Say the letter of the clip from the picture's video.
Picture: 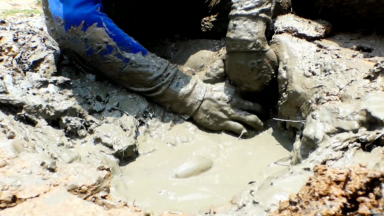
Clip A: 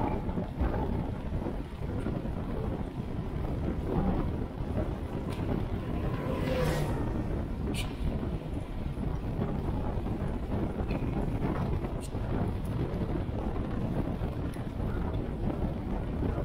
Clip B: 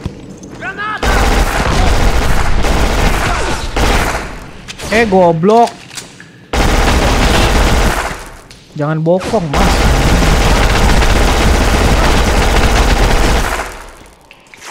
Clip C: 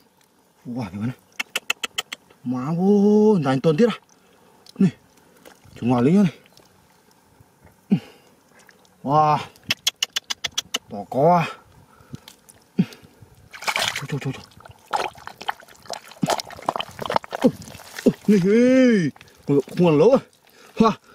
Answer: C